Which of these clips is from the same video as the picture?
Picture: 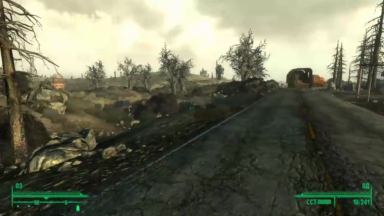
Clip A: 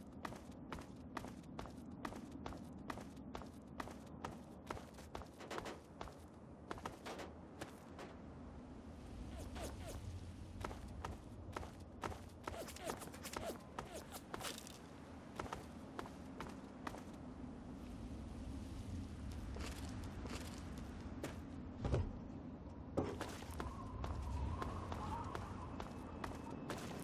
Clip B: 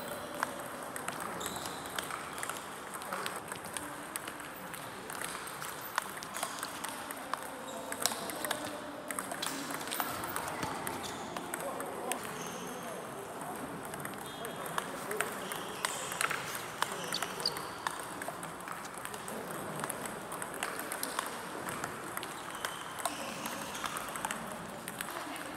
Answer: A